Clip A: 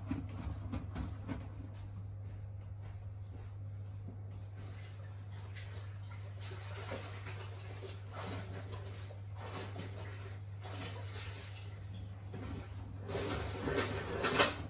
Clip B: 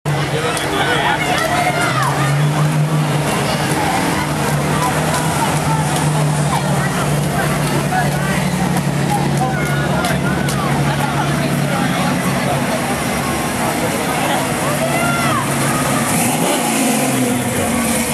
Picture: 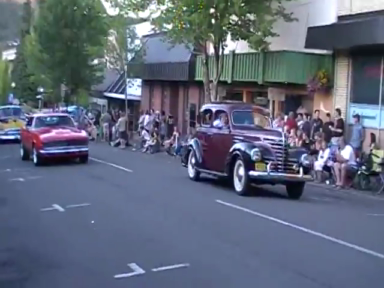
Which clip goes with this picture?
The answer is B